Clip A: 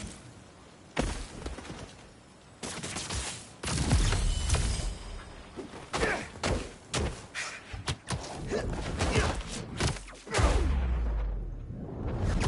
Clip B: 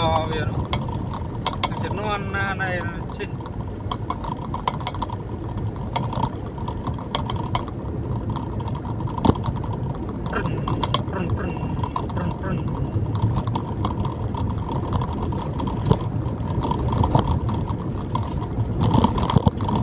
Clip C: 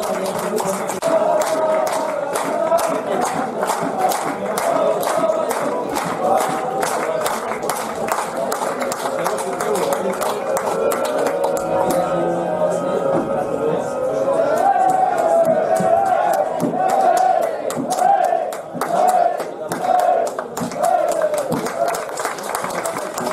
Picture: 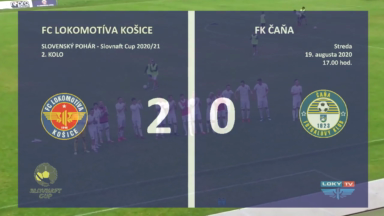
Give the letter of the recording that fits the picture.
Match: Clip C